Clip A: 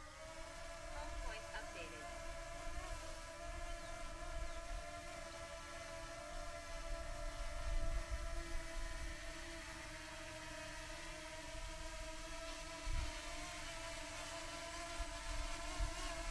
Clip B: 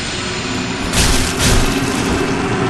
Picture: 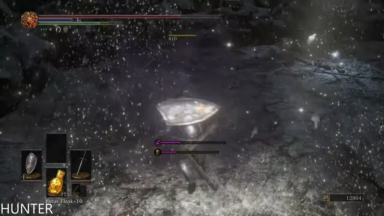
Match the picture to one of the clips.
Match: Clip B